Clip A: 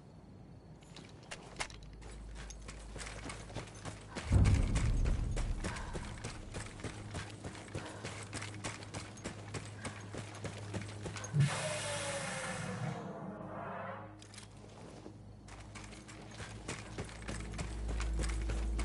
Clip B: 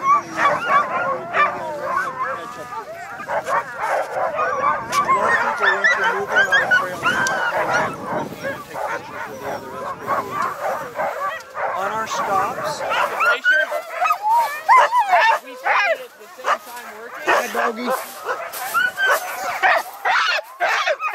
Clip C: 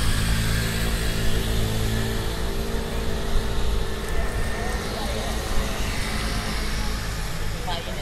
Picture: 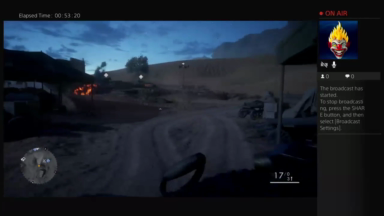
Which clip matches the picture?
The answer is A